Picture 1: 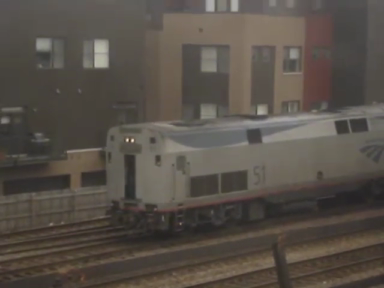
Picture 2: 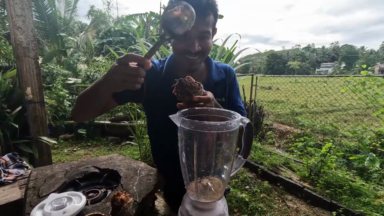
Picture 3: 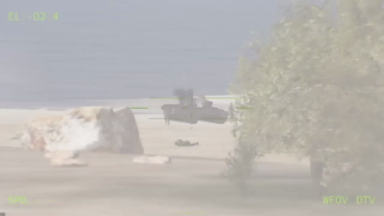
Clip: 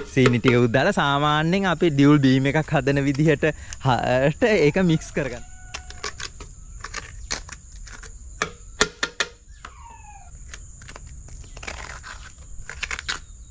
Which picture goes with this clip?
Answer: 2